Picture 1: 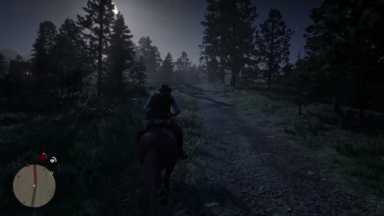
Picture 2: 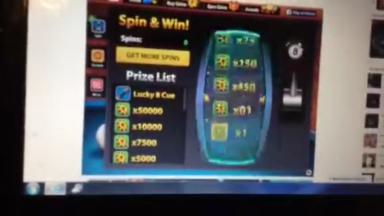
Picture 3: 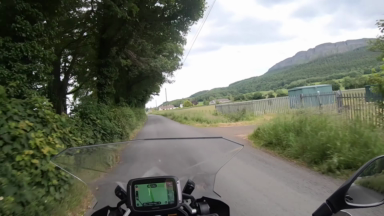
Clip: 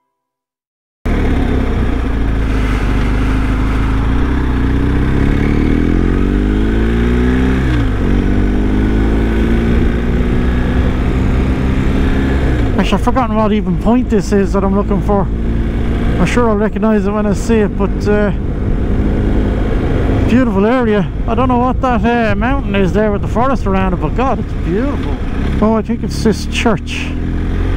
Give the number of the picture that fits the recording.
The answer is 3